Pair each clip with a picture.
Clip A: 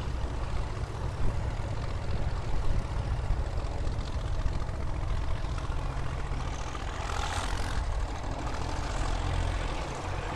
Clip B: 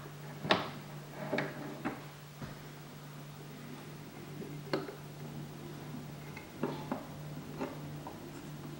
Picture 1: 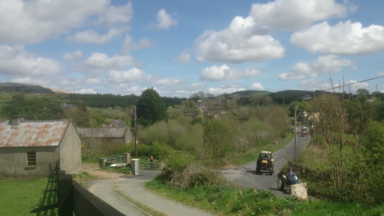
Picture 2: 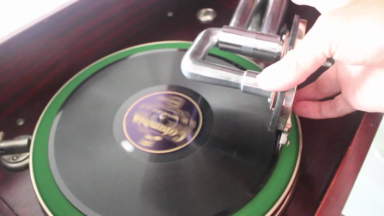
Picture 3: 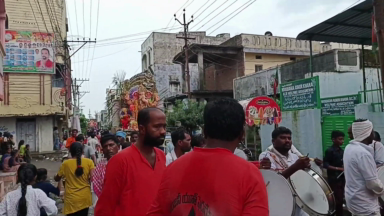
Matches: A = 1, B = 2